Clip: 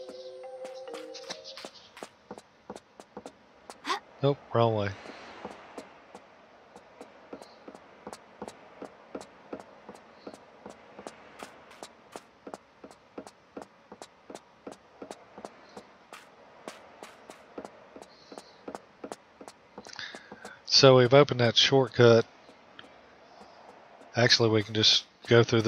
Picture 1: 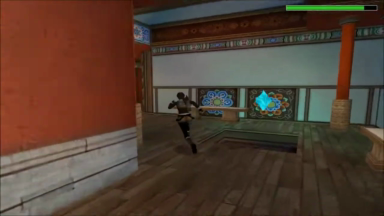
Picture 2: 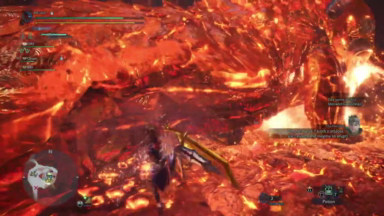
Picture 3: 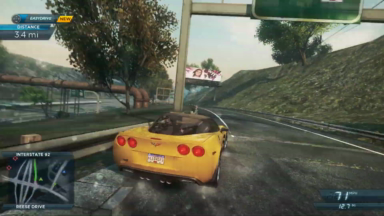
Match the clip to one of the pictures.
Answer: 1